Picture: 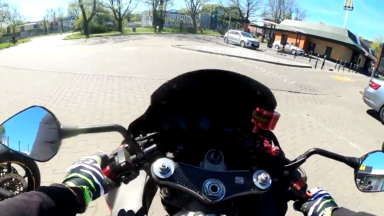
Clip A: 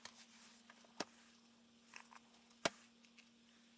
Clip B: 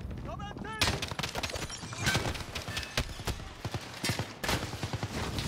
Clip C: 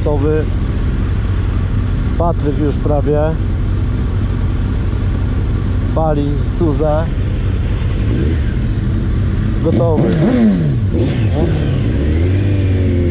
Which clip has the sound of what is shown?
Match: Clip C